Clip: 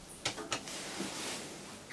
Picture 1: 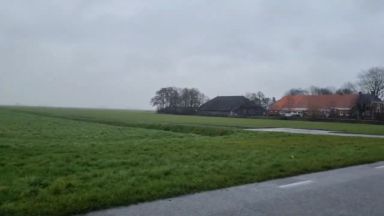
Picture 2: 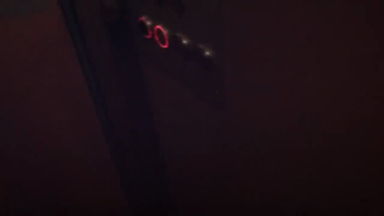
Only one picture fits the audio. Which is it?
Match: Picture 2